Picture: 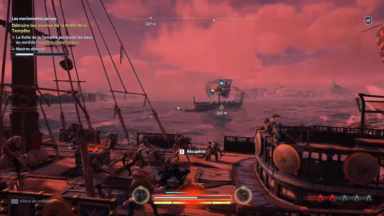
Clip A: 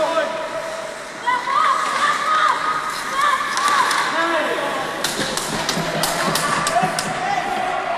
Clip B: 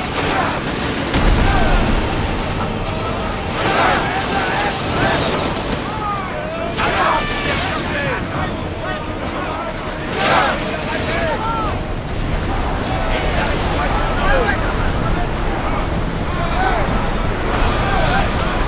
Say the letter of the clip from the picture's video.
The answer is B